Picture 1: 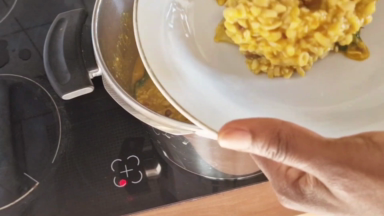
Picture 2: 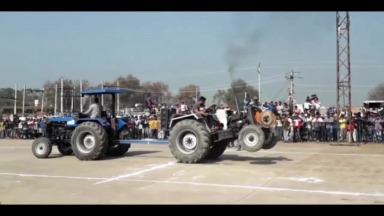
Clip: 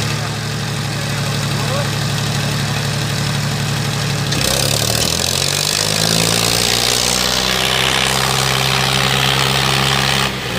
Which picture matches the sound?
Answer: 2